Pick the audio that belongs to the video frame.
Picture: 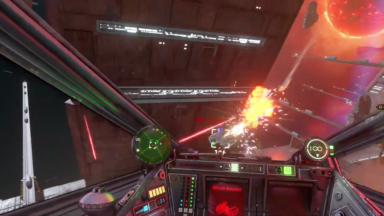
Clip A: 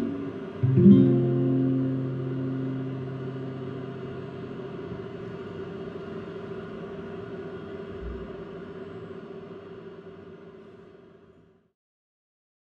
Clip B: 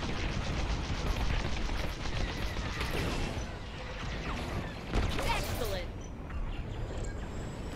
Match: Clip B